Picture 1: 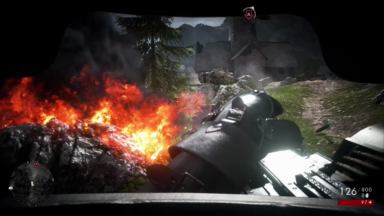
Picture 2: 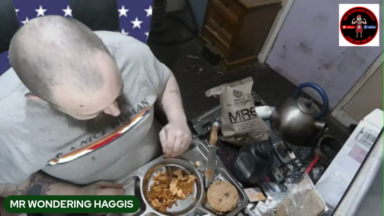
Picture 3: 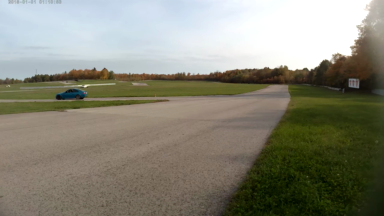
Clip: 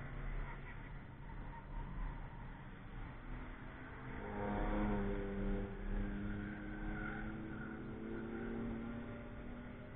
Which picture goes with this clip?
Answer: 3